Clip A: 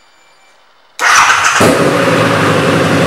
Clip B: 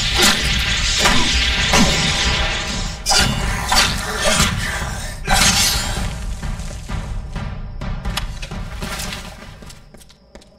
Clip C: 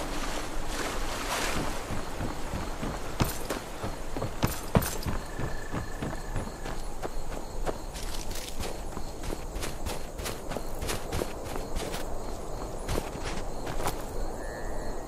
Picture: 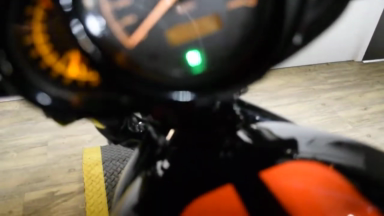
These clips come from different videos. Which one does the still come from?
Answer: A